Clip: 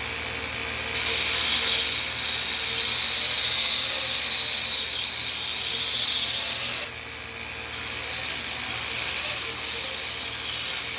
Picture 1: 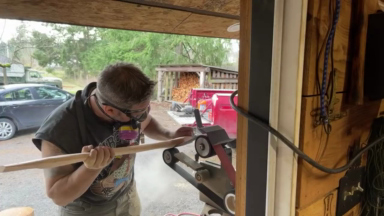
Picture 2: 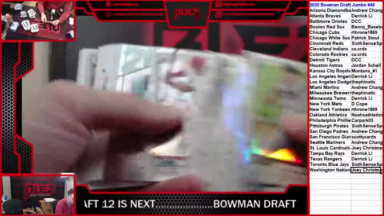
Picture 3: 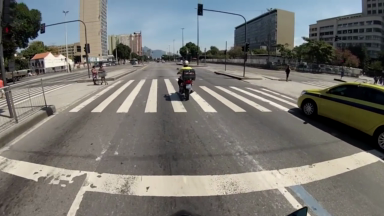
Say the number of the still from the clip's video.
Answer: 1